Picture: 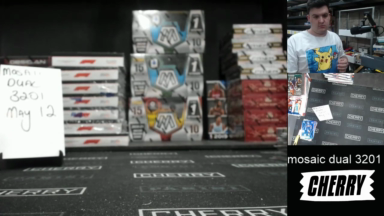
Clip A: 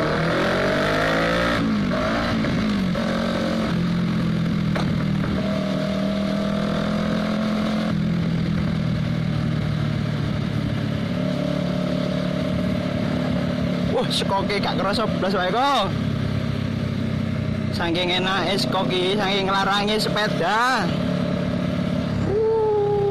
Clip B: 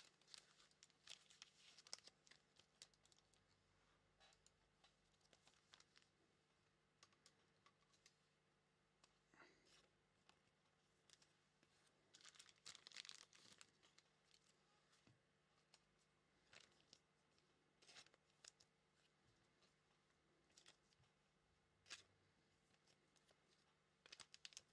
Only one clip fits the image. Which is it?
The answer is B